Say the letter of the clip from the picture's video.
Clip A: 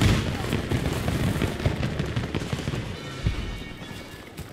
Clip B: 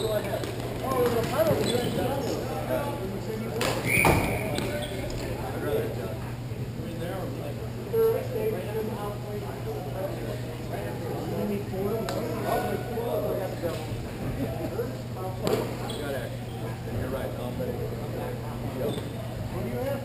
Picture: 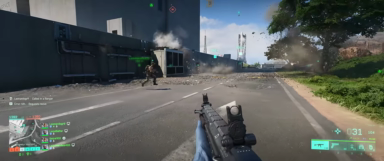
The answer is A